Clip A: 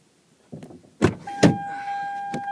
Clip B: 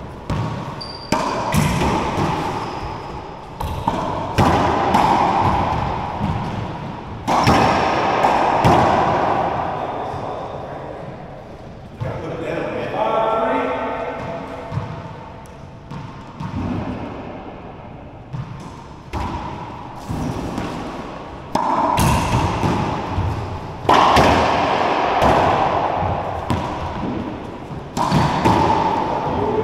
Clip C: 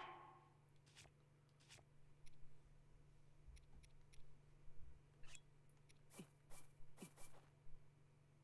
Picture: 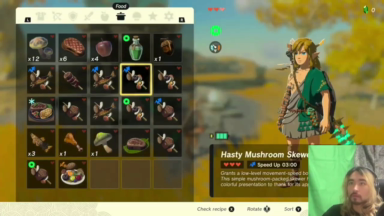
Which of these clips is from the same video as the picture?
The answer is C